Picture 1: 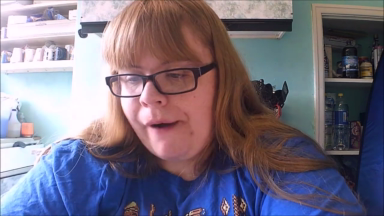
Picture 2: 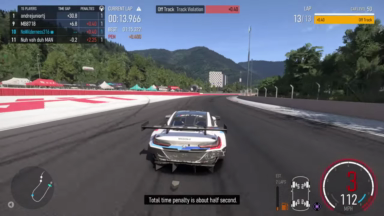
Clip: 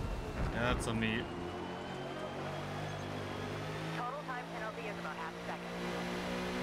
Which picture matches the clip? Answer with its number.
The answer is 2